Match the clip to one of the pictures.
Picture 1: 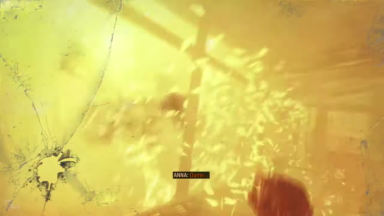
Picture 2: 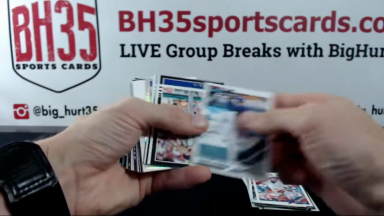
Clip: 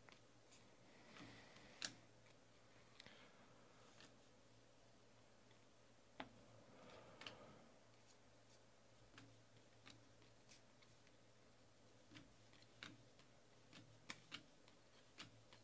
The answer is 2